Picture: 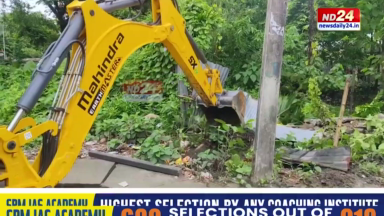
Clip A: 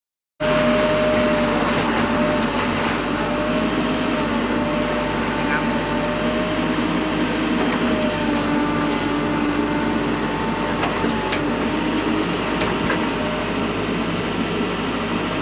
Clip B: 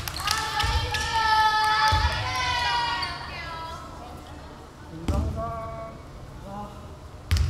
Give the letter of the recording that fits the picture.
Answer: A